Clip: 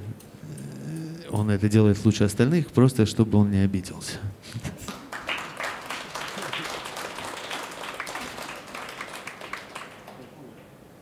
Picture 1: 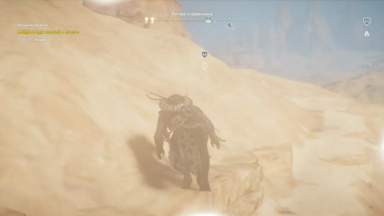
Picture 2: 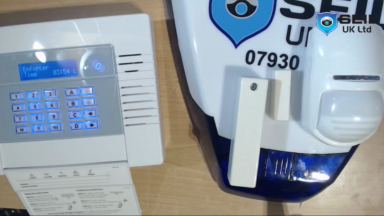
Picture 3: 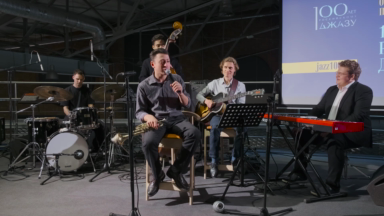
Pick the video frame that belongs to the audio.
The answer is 3